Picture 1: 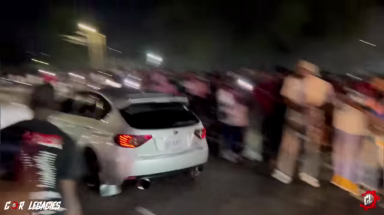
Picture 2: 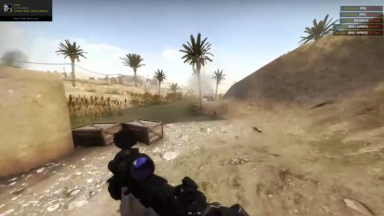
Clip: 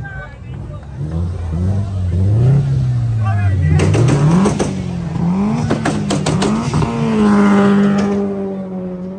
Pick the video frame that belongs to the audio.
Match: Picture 1